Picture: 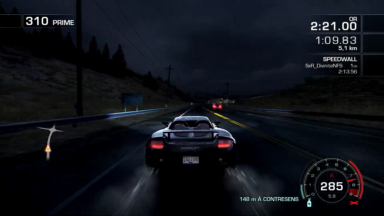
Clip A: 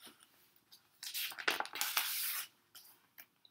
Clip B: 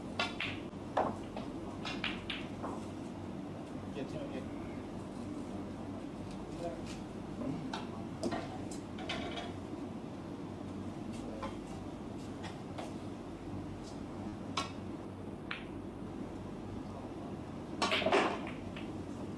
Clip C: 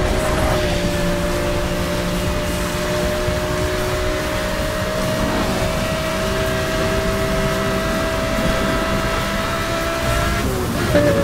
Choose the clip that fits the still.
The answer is C